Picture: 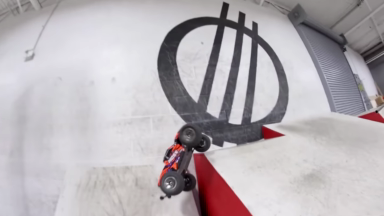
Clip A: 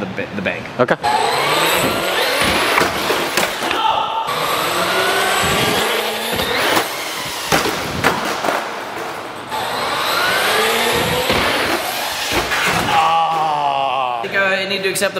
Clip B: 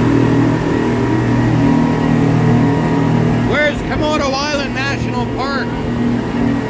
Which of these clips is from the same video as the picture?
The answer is A